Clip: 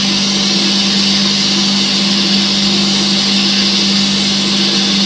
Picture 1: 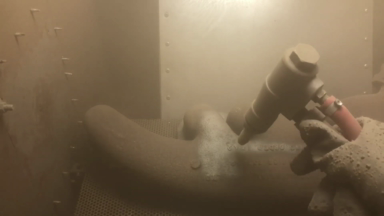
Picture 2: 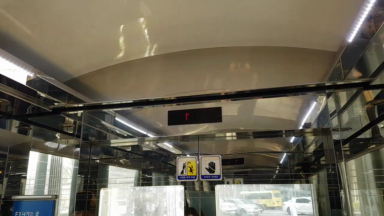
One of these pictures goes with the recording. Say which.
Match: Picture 1